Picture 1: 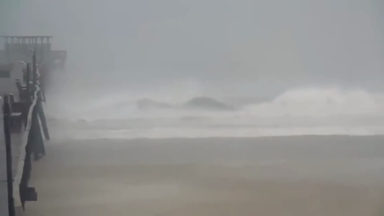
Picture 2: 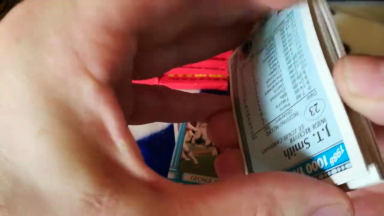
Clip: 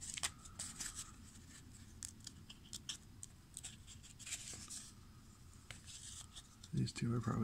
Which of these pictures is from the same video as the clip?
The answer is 2